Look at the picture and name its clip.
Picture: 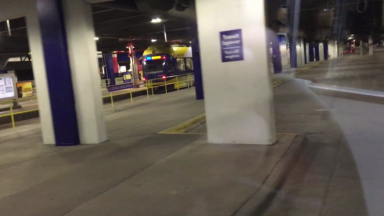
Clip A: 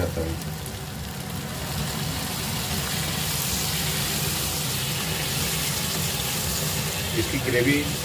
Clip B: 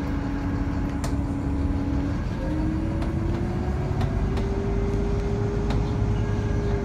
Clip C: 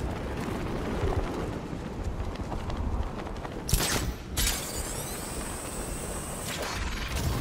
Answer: B